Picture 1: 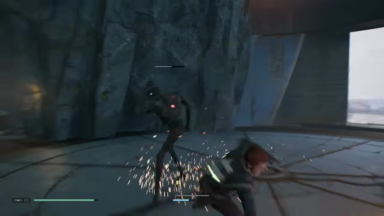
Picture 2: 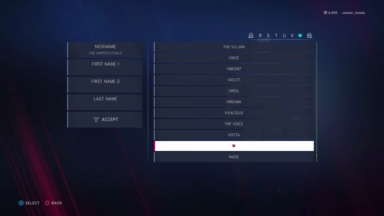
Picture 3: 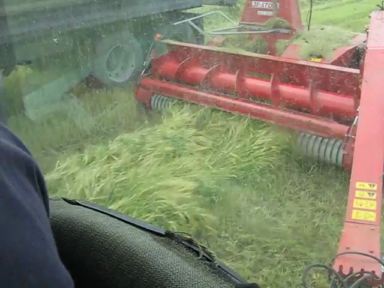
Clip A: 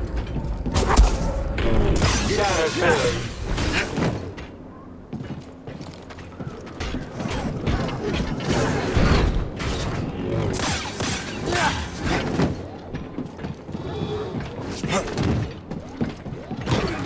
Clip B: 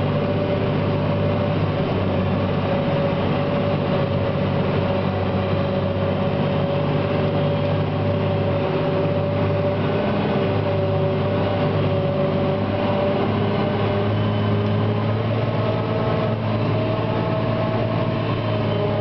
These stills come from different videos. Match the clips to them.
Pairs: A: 1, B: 3